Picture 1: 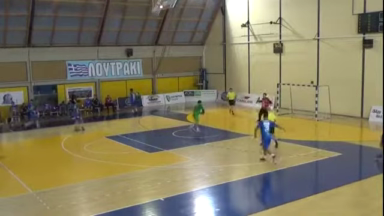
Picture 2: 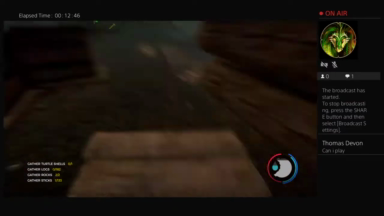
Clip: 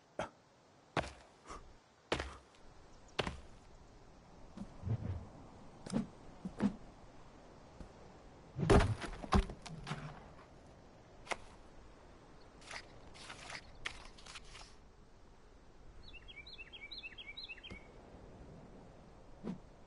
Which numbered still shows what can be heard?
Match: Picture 2